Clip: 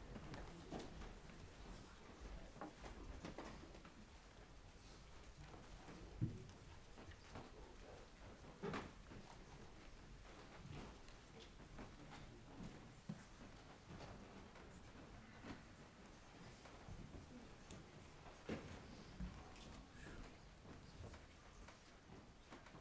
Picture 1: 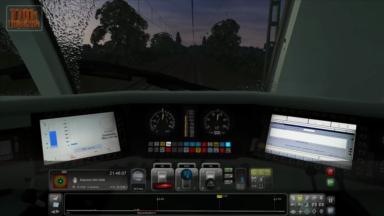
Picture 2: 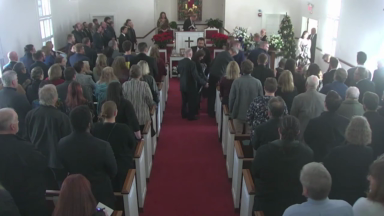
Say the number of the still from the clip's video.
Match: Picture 2